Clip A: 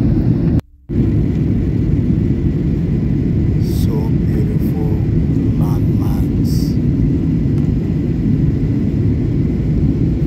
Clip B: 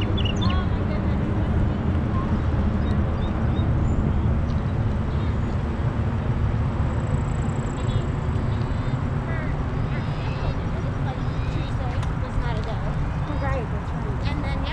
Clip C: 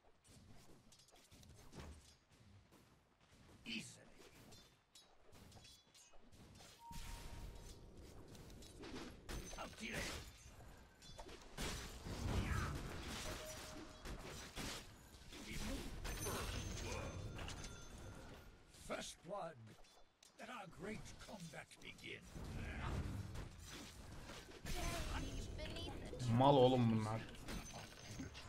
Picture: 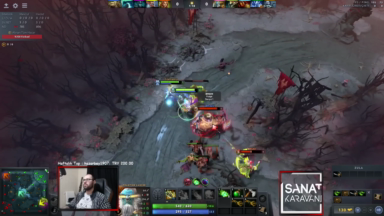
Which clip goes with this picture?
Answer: C